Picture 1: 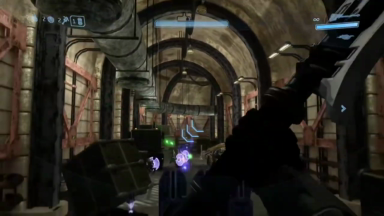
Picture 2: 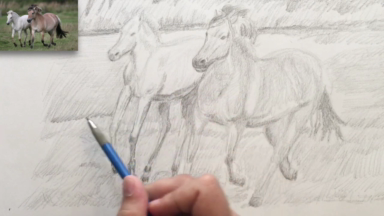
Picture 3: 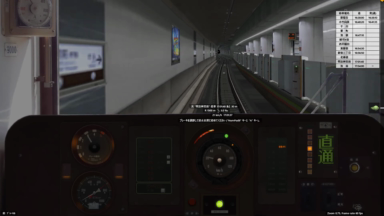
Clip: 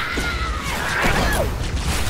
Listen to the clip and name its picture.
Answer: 1